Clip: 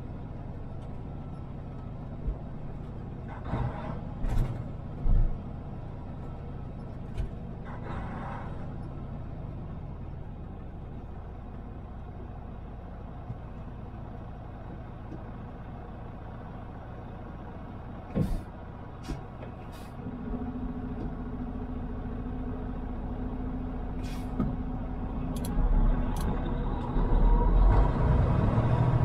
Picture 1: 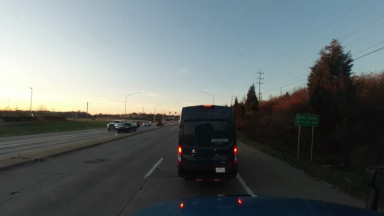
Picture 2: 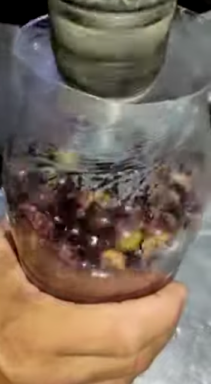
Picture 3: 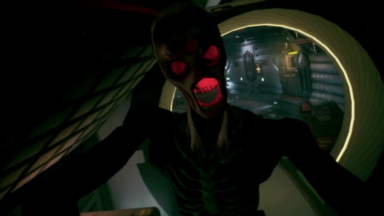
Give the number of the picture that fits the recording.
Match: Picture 1